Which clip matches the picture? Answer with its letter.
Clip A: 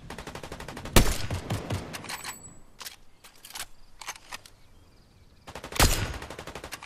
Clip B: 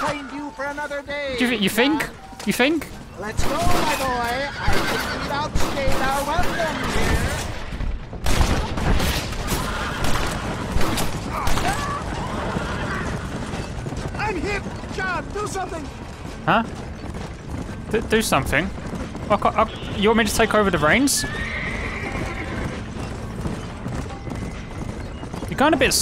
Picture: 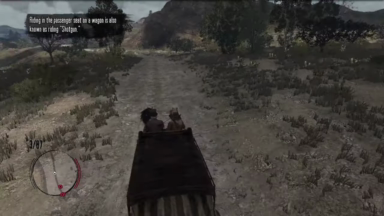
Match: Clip B